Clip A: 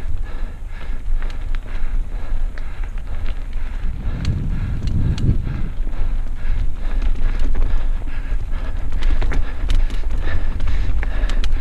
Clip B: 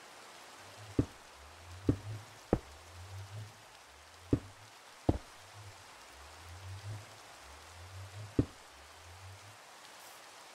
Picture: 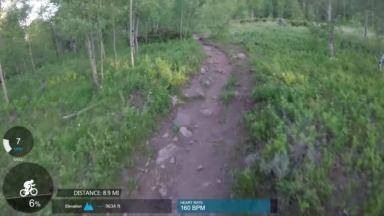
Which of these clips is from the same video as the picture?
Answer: A